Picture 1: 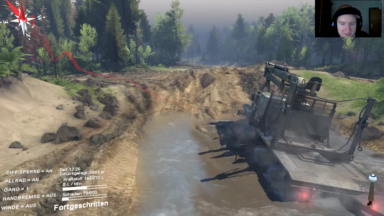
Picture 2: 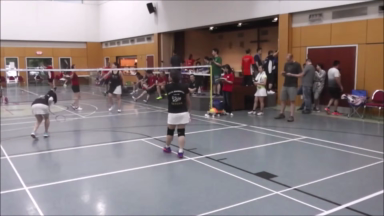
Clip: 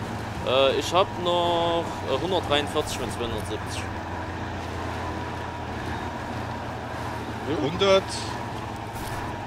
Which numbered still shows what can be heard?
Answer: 1